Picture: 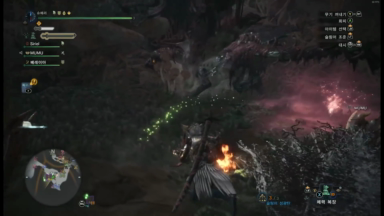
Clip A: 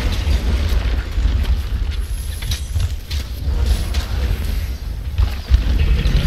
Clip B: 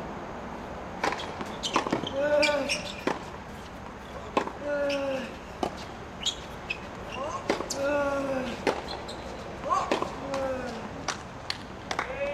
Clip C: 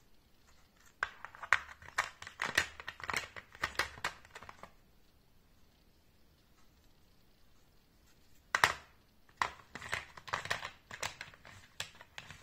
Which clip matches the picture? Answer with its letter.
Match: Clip A